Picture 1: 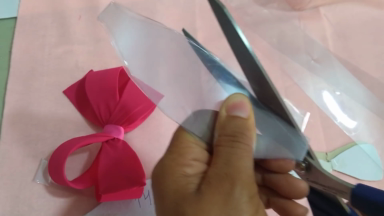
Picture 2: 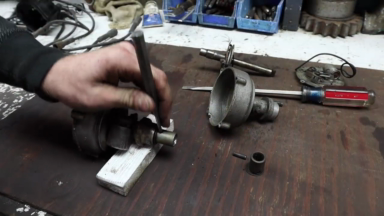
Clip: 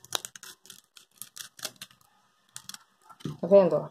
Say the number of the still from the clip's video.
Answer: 1